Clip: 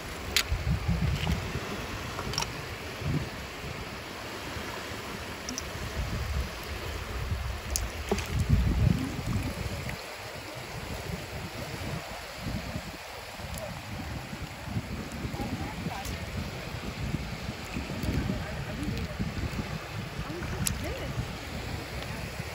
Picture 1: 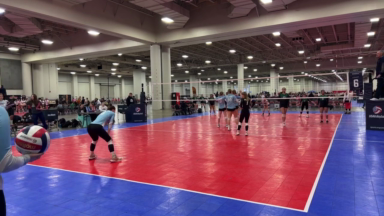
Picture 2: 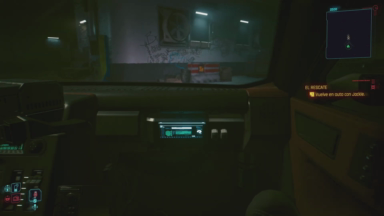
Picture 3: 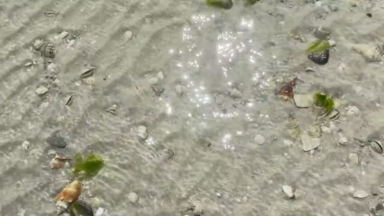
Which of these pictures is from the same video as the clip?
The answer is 3